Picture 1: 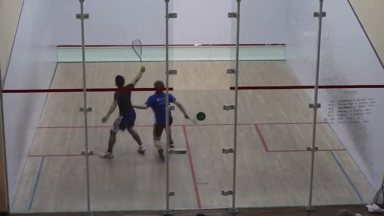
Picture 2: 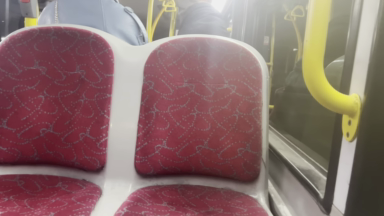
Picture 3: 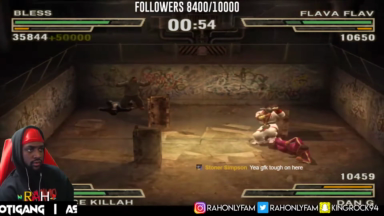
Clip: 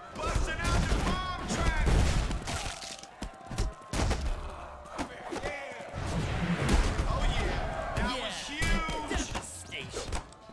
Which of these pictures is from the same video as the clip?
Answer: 3